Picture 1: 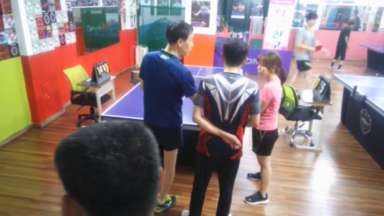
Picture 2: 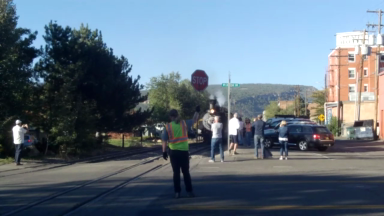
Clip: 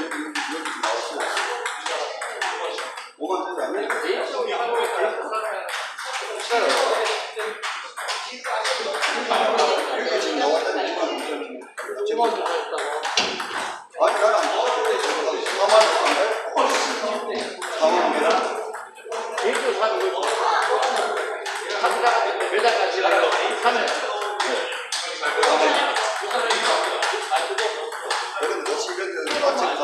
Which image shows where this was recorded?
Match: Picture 1